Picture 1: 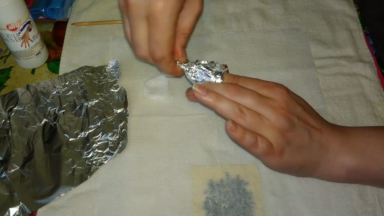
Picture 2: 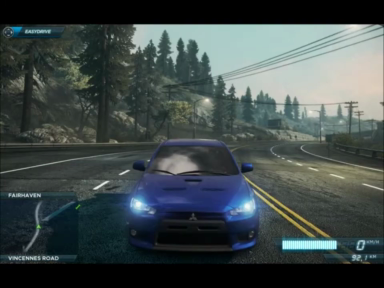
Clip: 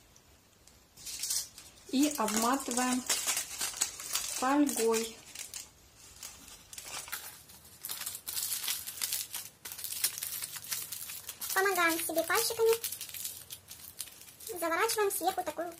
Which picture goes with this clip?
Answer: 1